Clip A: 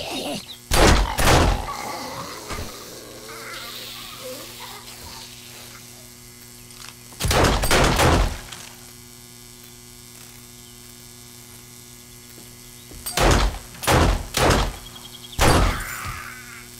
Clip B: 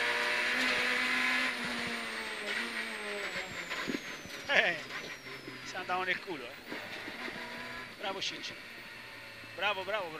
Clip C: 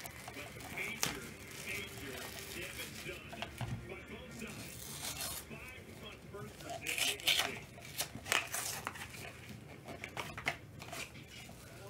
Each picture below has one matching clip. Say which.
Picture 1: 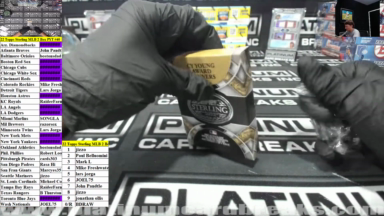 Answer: C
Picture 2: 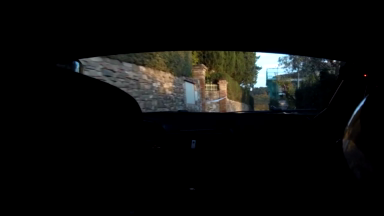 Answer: B